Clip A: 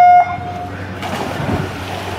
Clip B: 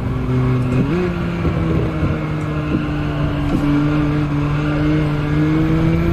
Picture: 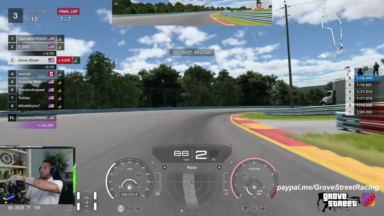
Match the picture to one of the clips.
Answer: B